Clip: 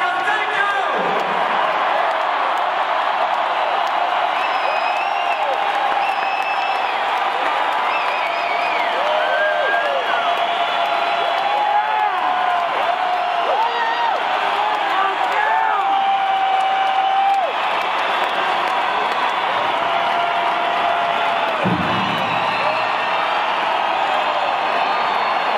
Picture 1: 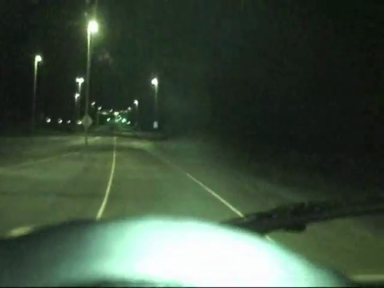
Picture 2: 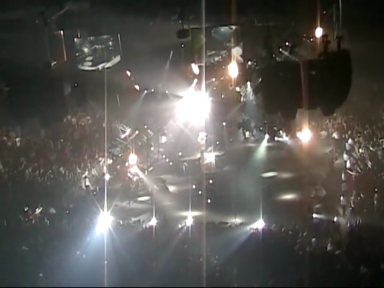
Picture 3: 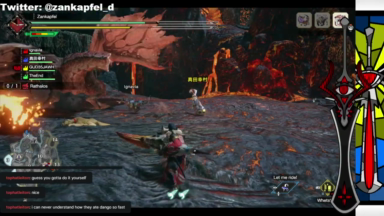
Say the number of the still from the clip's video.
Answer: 2